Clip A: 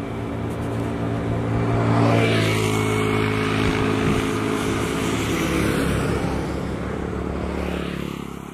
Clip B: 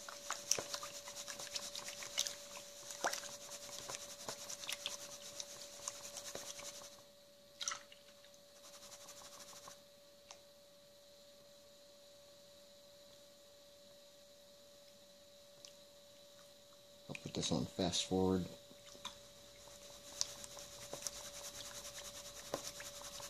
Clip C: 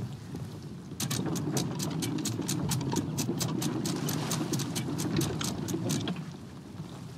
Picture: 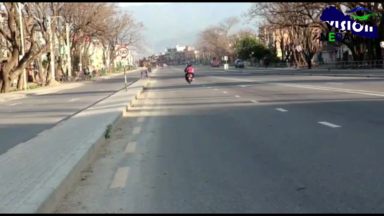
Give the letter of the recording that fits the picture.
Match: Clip A